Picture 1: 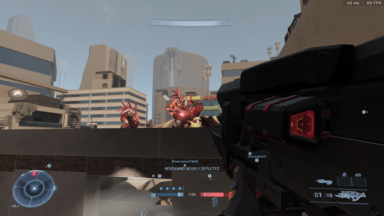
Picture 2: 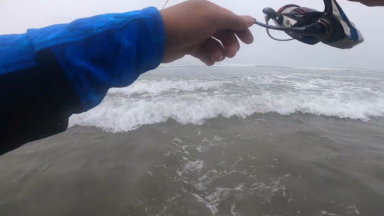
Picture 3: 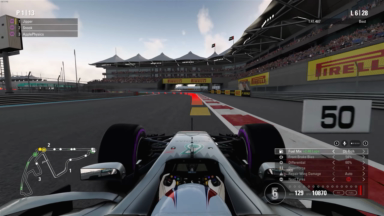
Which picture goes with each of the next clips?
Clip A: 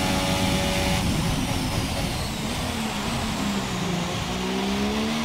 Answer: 3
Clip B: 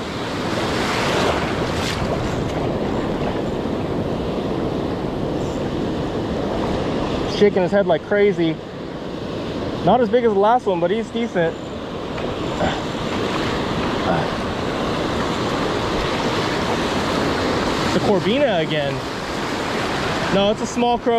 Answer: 2